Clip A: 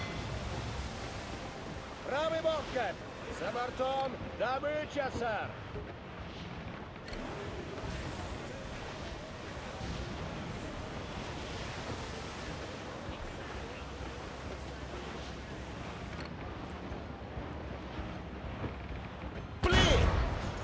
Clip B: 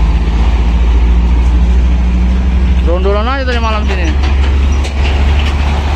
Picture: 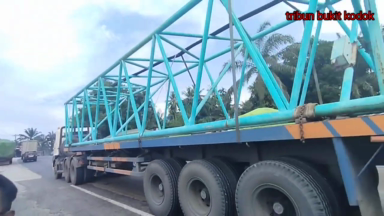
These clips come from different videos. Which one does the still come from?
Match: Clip B